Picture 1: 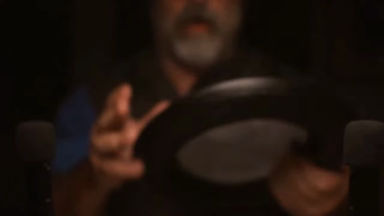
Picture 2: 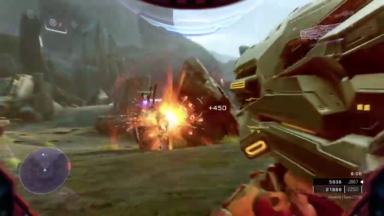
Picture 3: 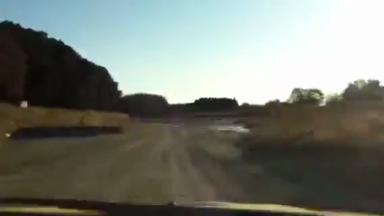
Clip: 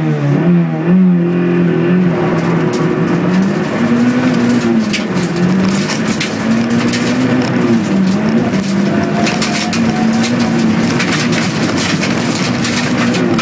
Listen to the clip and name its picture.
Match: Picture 3